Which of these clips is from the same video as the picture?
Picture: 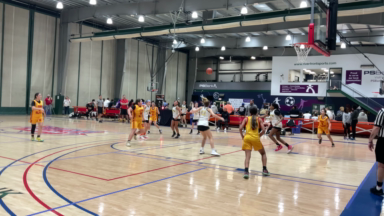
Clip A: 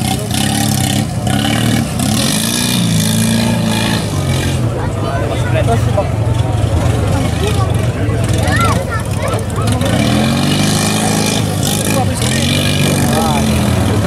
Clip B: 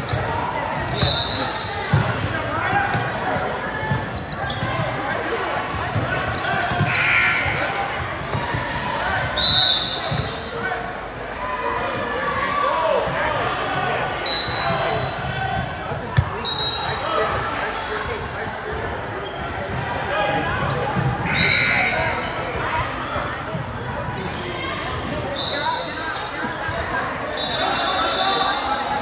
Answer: B